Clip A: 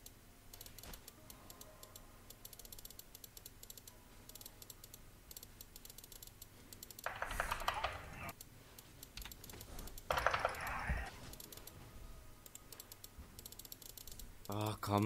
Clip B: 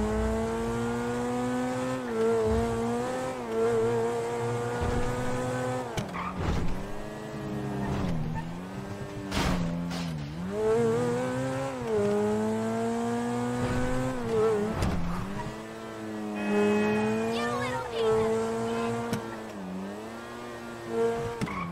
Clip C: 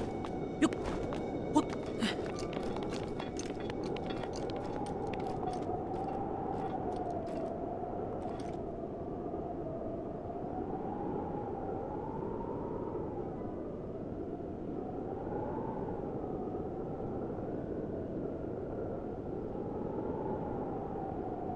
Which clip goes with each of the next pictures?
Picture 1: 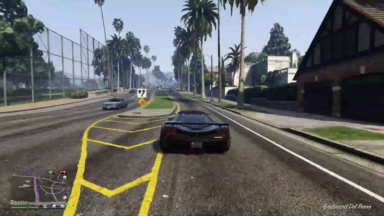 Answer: B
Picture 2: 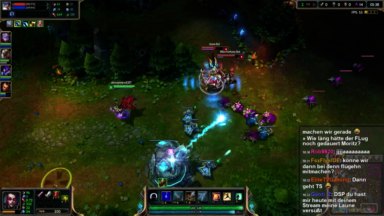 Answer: A